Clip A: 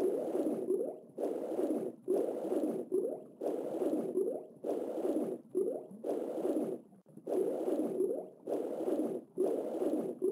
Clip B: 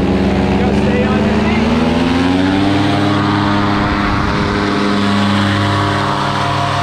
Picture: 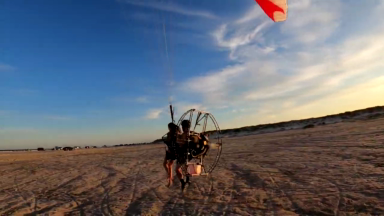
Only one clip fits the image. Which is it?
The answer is B